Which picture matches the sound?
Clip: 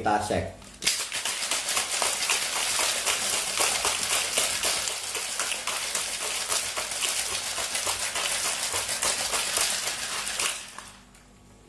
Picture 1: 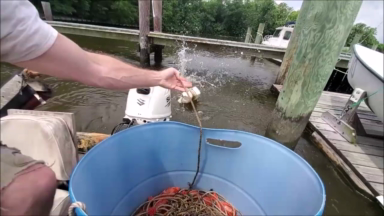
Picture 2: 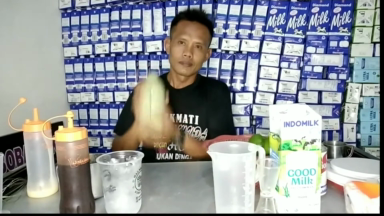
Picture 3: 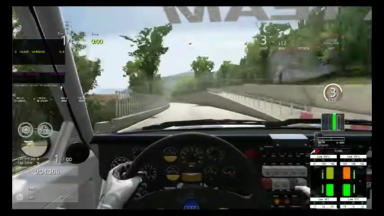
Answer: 2